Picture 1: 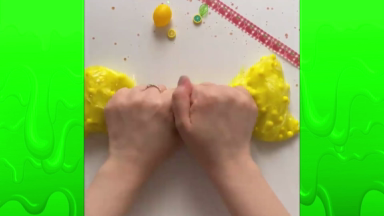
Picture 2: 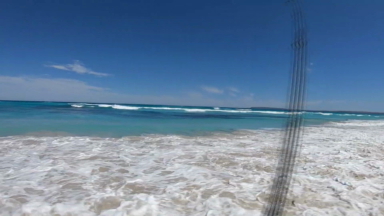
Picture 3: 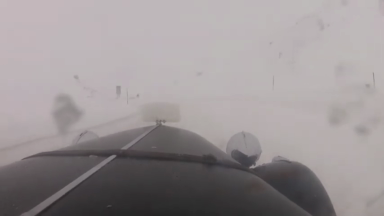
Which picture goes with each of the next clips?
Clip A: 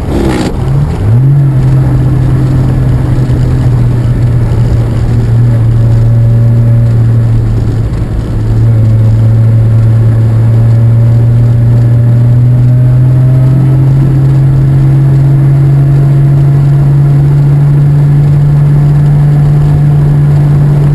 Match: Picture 3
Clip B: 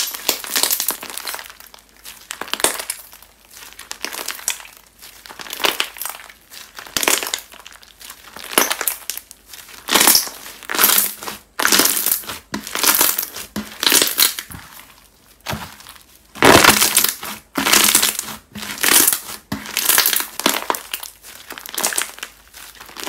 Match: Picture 1